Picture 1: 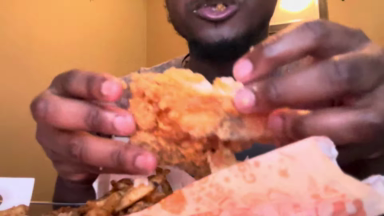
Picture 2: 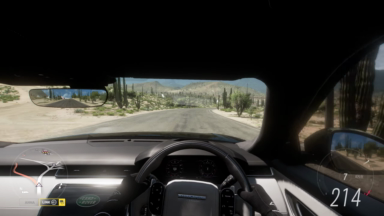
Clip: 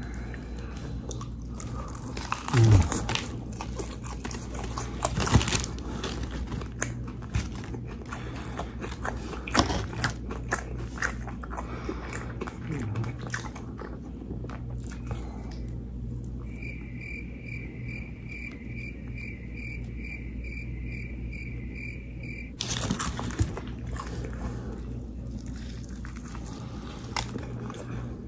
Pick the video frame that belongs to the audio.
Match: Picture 1